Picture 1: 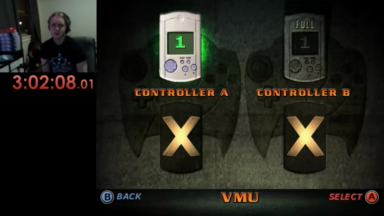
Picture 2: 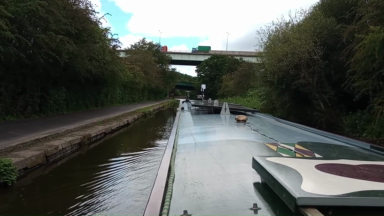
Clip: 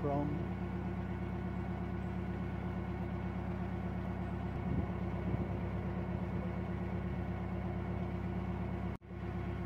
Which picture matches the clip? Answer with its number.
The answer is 2